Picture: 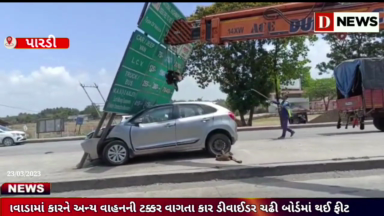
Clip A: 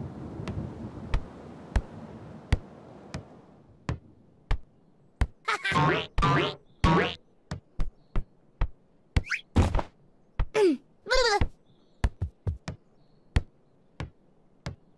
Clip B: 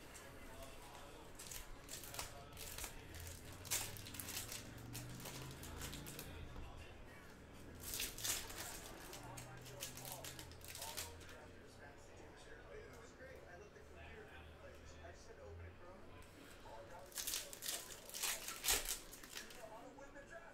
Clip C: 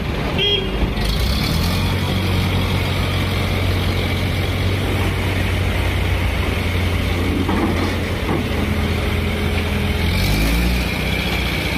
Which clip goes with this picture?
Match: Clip C